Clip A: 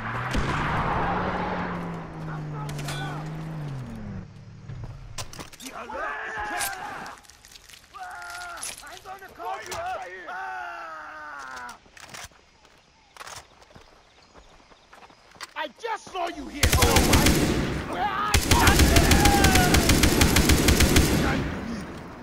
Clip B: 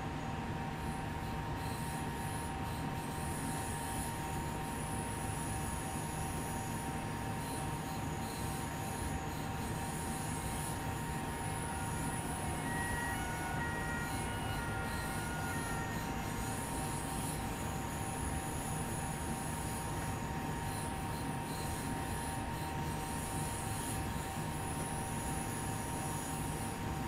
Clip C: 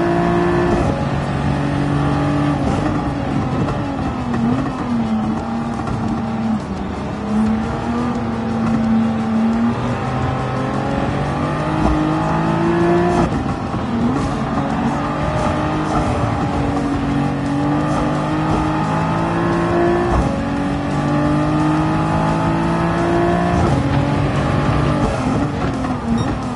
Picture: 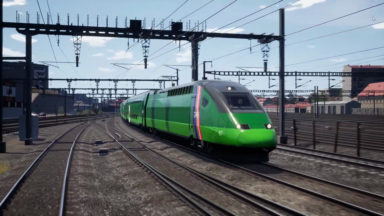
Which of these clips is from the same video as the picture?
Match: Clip B